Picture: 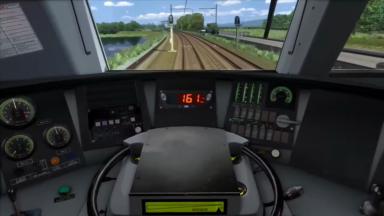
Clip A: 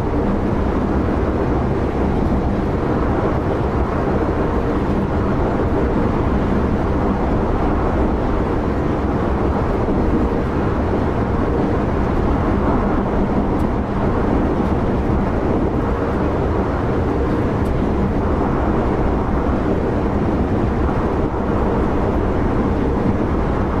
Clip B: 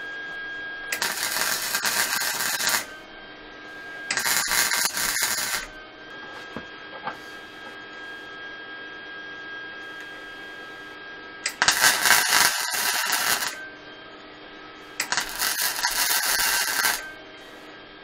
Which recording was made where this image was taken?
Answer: A